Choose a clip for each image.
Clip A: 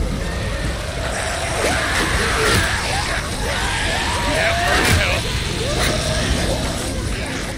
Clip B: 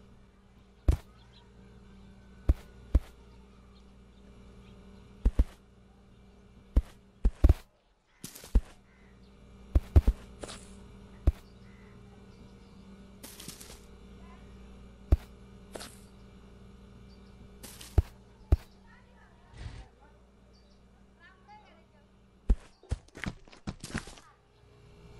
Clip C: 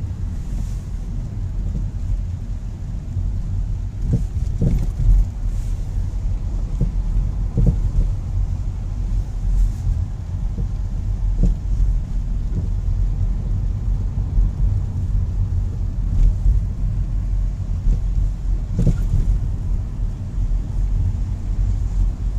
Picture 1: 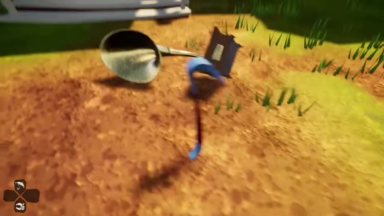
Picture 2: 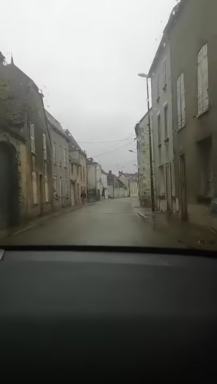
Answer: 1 B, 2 C